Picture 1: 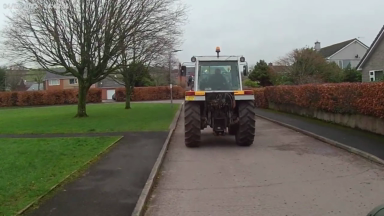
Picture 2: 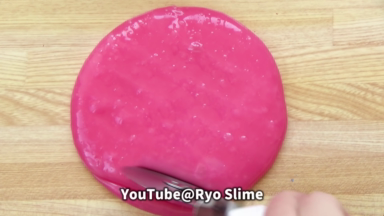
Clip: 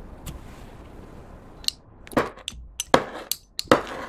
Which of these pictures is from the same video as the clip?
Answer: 2